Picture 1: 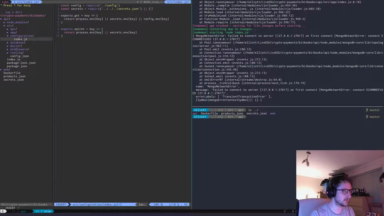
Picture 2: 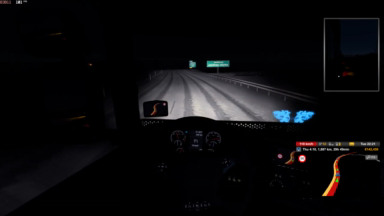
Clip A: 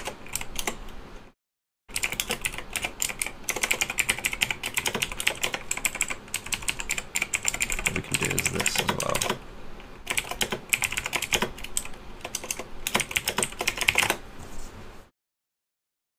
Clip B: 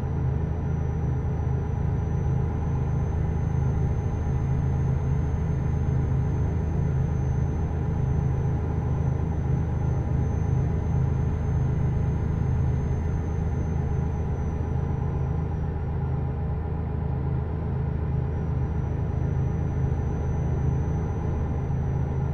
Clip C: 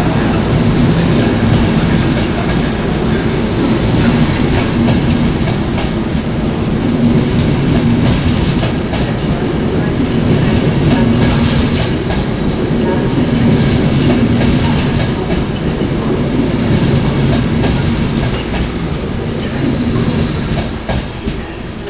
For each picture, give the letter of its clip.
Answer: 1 A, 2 B